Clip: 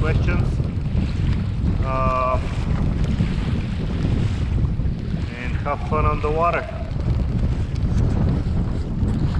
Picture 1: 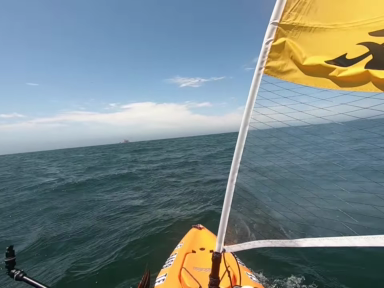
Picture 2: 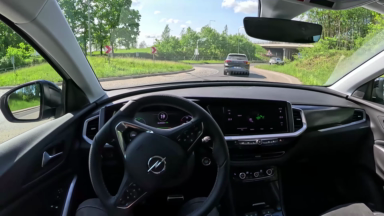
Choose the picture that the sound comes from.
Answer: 1